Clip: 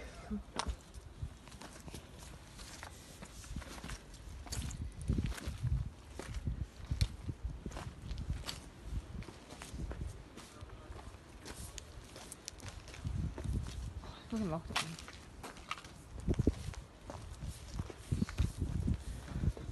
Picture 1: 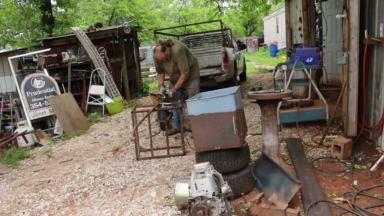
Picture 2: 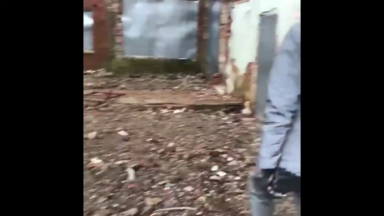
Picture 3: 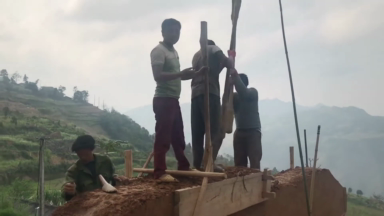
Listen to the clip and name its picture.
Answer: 2